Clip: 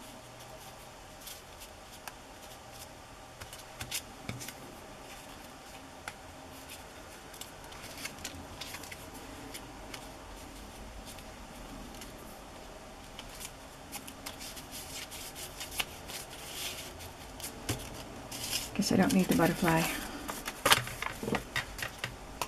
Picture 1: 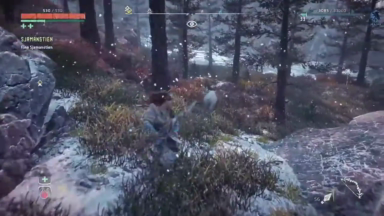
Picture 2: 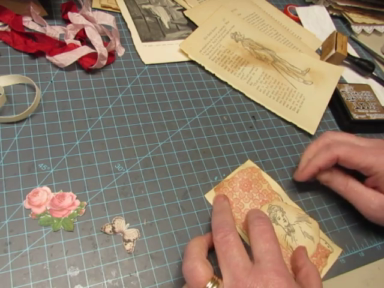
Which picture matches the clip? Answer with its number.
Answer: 2